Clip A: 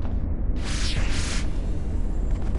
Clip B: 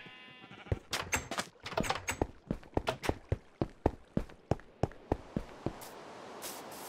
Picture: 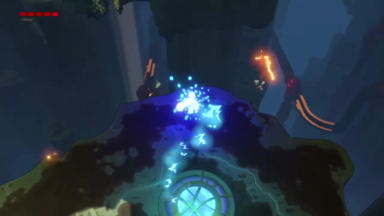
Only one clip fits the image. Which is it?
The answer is A